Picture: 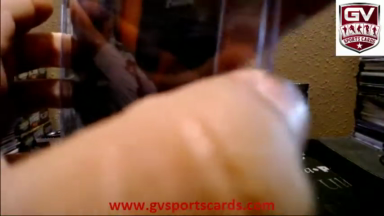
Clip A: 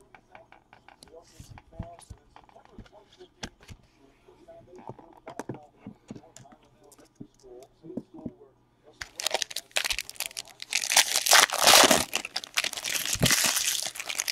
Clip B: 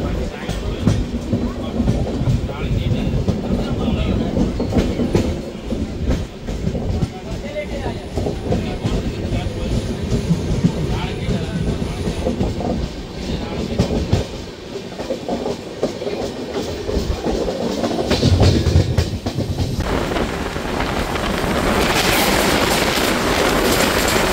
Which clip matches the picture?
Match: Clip A